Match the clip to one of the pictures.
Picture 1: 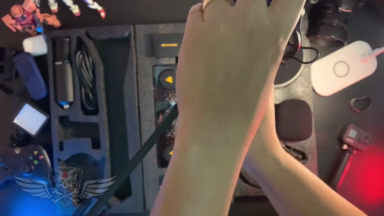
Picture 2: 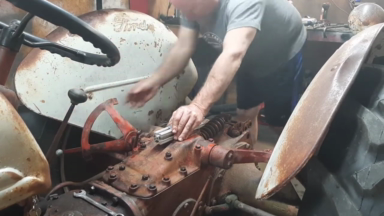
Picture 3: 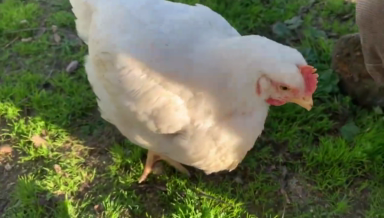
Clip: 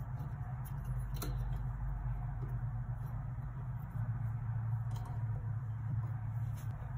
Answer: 1